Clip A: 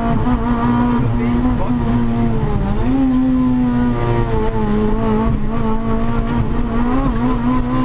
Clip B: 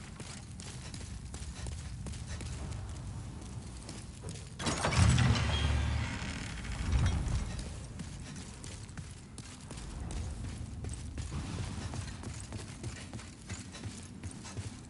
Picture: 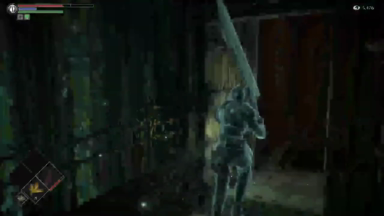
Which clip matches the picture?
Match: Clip B